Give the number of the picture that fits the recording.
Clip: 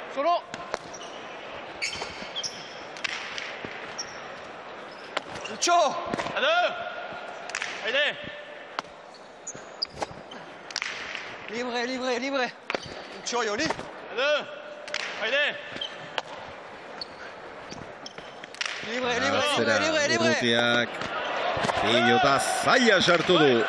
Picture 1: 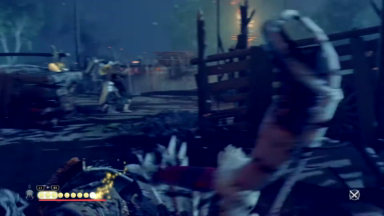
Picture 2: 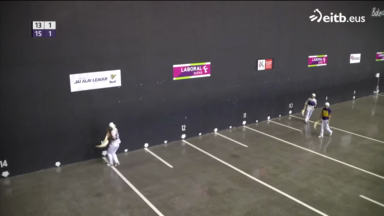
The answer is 2